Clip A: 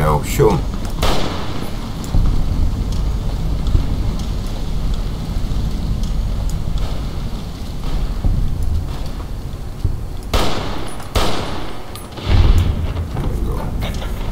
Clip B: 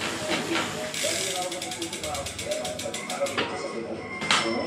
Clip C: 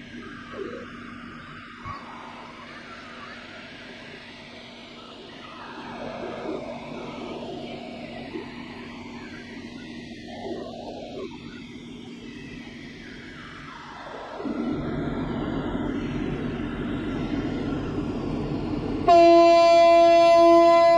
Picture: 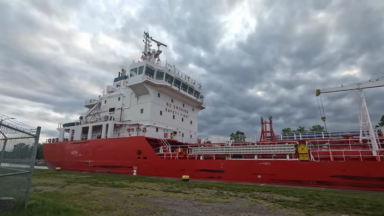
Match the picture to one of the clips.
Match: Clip C